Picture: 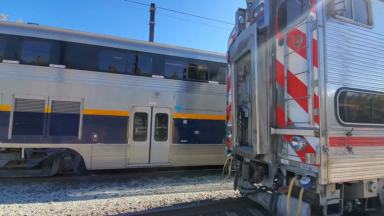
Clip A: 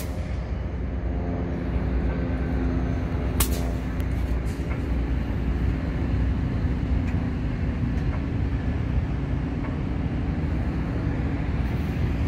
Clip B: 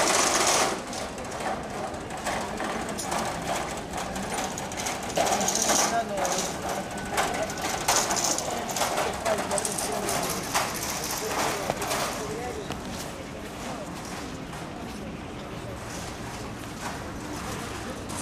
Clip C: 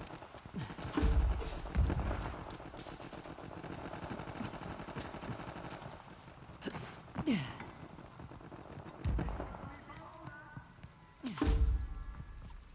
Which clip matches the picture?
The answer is A